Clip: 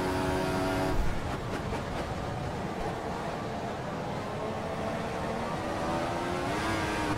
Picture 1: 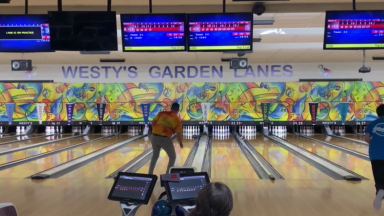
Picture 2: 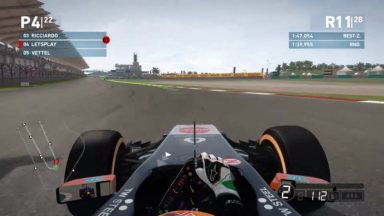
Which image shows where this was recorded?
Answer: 2